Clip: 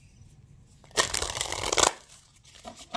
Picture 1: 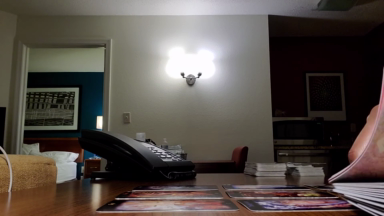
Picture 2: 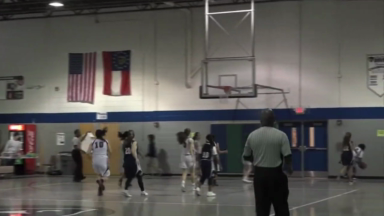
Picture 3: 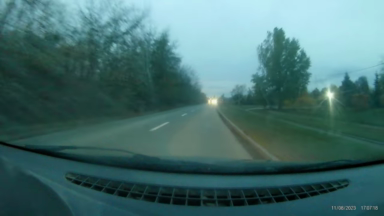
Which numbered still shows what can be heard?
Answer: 1